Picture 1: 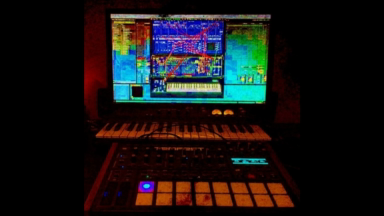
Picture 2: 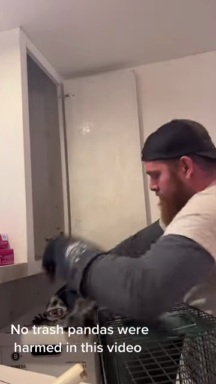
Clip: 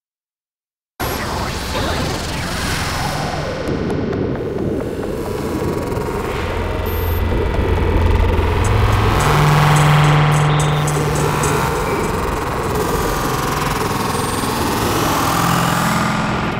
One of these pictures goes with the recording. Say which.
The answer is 1